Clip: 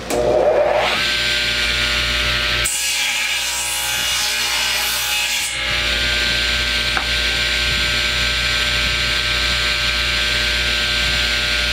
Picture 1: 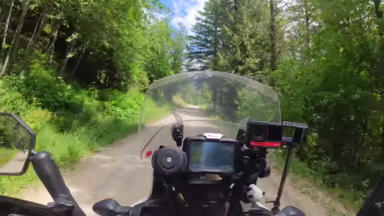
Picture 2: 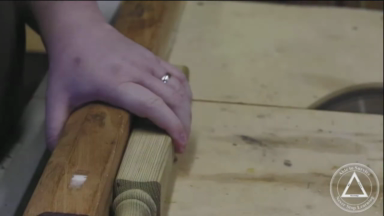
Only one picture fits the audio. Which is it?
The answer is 2